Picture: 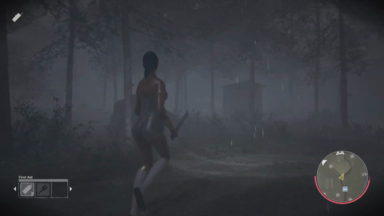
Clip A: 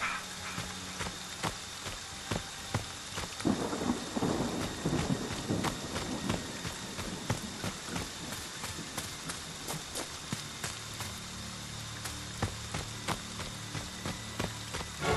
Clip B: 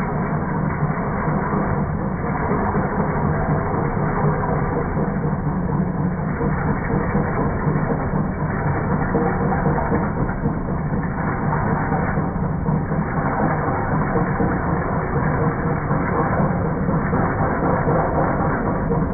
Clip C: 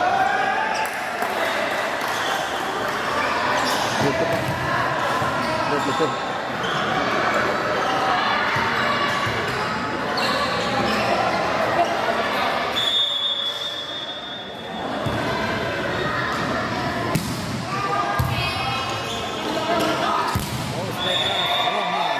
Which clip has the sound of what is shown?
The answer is A